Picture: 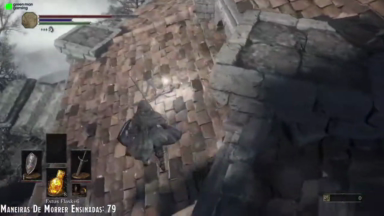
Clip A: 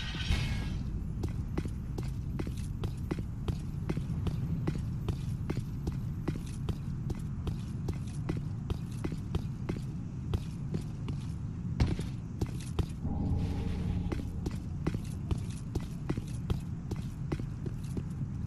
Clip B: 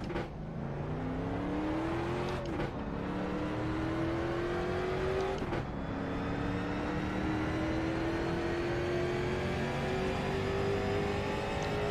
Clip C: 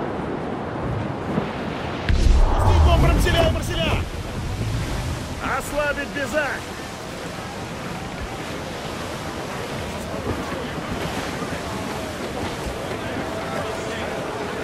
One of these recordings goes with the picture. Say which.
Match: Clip A